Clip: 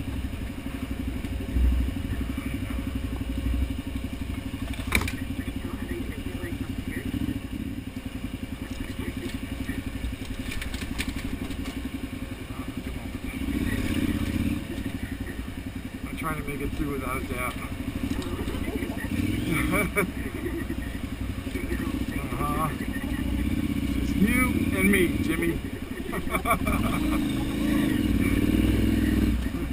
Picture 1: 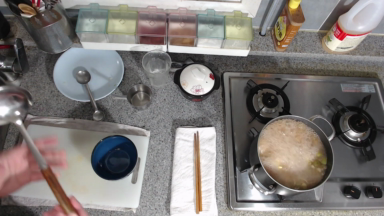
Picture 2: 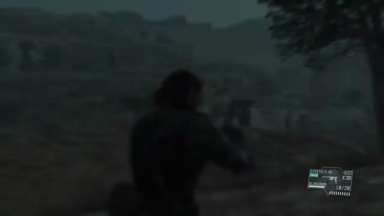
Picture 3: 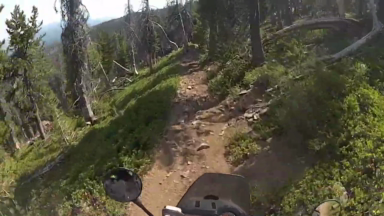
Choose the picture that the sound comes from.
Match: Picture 3